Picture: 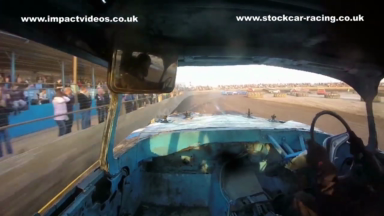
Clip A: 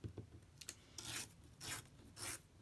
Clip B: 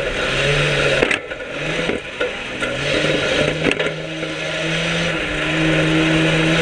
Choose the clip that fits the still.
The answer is B